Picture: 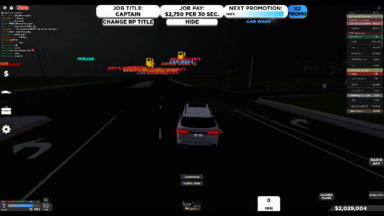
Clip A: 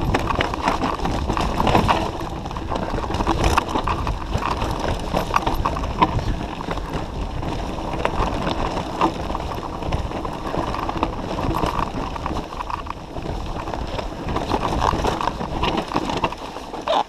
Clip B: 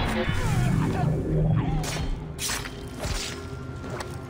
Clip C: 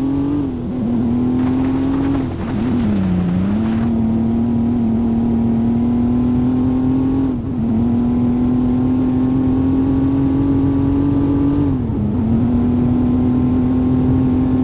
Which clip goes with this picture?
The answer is C